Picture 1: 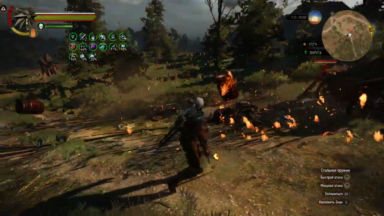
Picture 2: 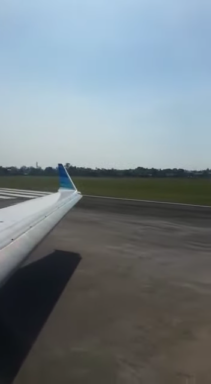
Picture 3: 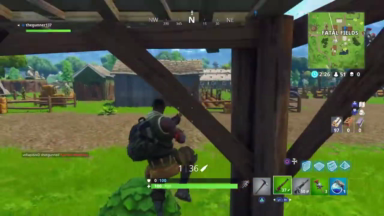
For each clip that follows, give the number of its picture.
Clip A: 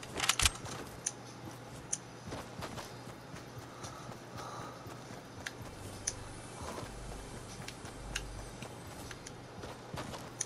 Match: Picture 3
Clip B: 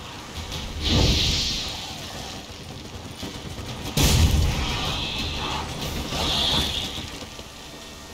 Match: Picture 1